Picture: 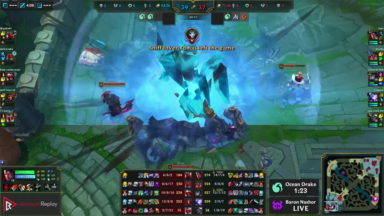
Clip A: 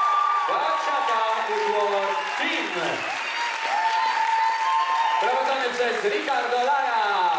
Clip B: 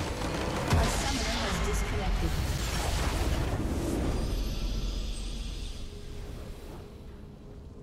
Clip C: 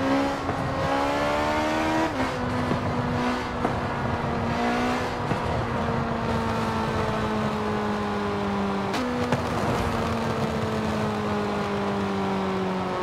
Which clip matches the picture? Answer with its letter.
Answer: B